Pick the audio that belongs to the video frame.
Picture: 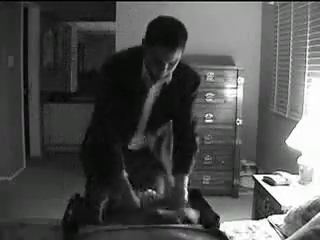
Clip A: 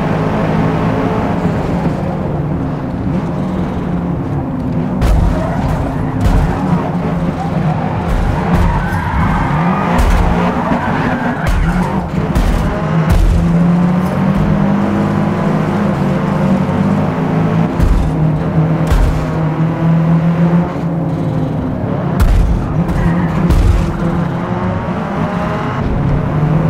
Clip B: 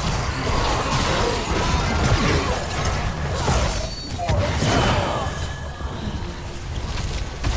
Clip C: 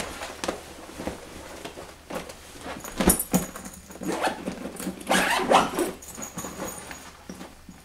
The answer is C